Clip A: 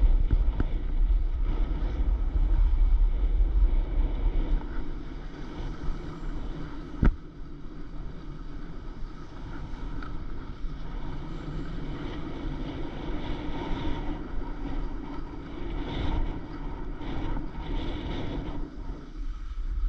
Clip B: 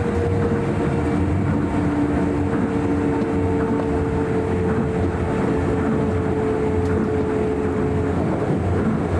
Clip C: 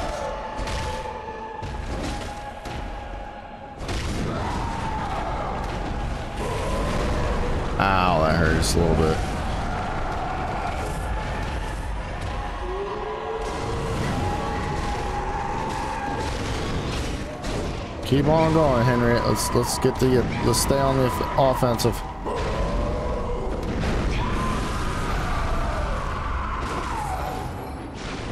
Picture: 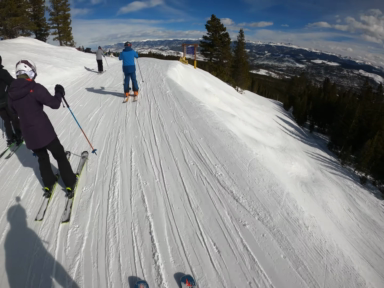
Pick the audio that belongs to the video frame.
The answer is A